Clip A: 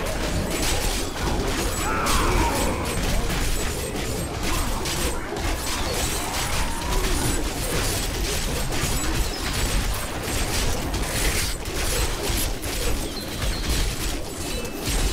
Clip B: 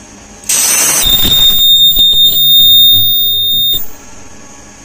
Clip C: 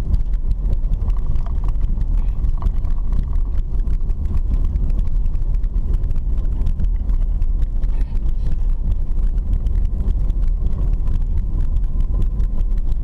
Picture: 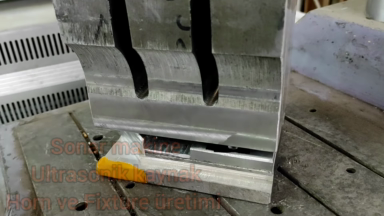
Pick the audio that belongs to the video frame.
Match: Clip B